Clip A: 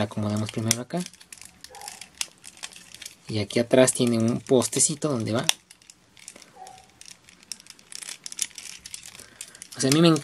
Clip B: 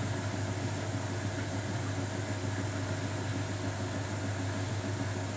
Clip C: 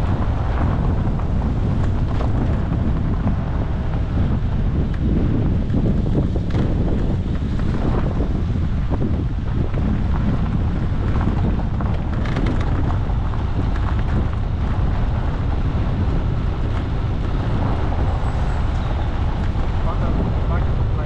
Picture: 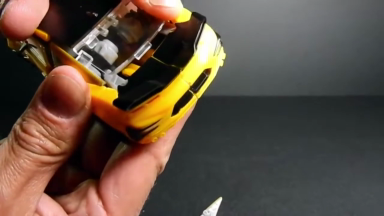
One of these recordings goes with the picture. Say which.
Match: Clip A